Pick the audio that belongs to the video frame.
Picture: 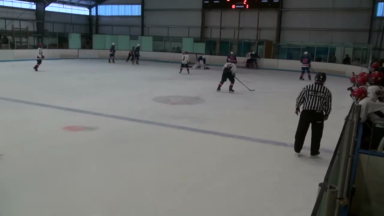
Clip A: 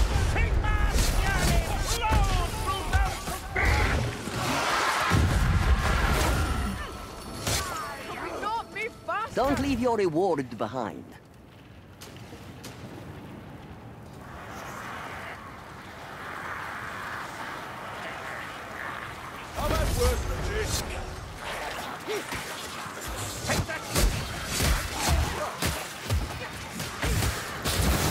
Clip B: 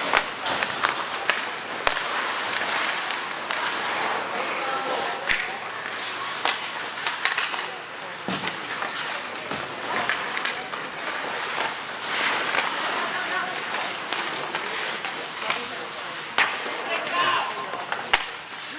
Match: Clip B